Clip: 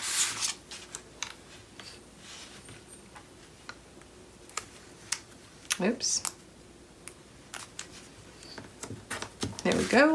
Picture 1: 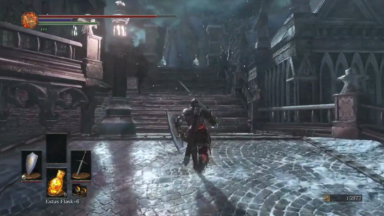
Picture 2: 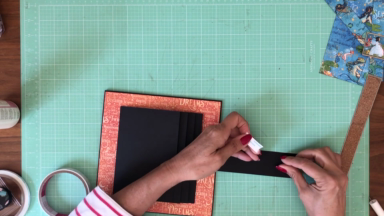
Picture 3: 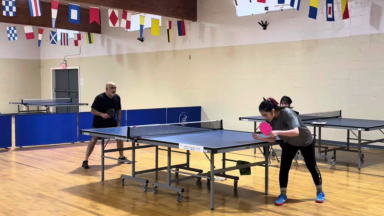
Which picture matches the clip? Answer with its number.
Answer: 2